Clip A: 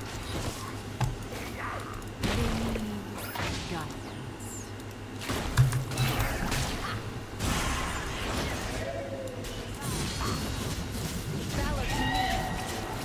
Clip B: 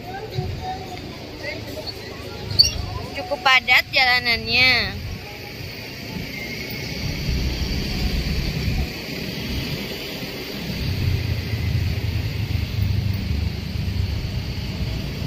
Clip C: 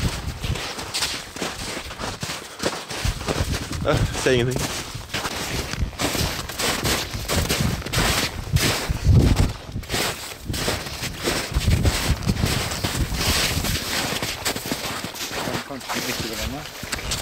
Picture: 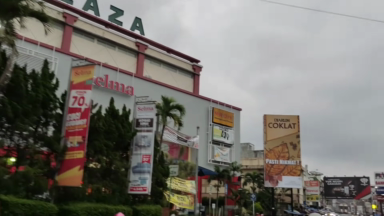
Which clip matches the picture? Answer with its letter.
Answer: B